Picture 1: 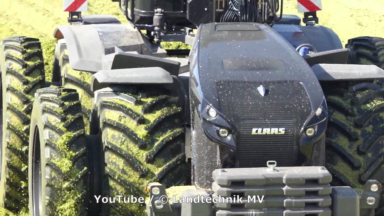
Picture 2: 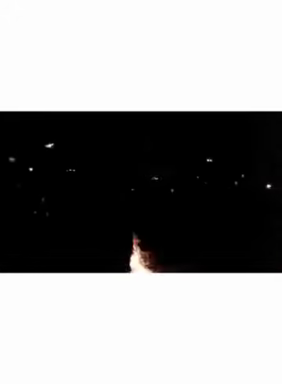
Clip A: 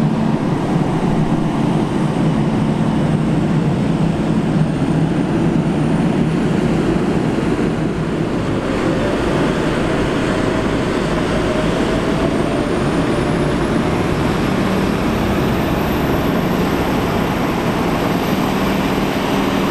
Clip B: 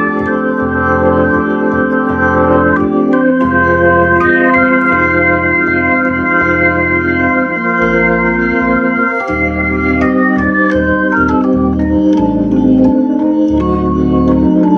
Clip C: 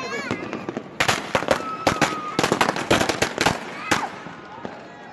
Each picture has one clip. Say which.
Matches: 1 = A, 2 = C